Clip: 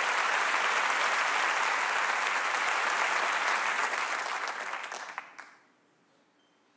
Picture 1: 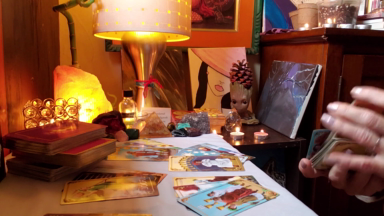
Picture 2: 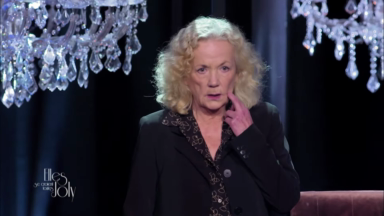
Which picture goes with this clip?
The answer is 2